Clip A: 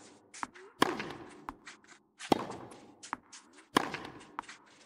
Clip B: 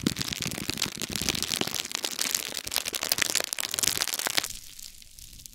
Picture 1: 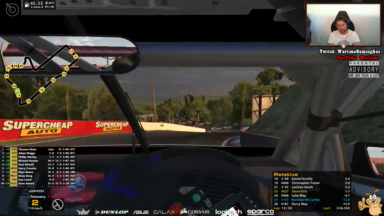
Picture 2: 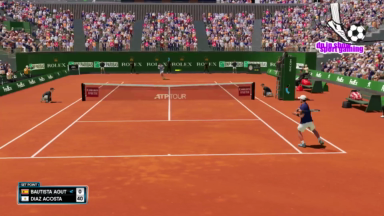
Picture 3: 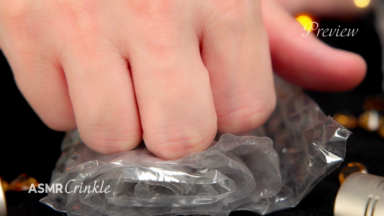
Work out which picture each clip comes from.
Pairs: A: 2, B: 3